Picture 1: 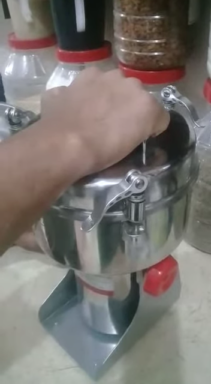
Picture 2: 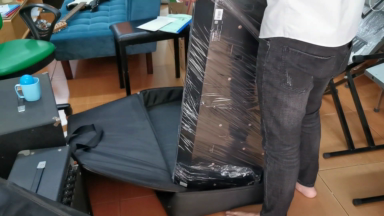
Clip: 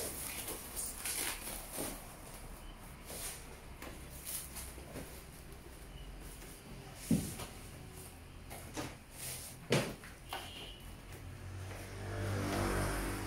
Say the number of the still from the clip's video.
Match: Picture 2